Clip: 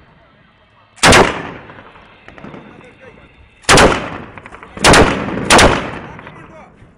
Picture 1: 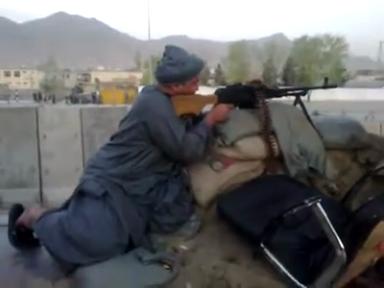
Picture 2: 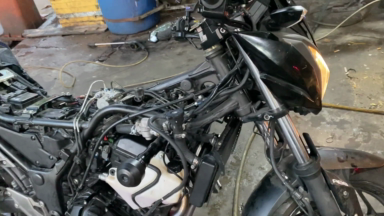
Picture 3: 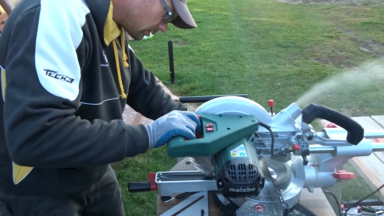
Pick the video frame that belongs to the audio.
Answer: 1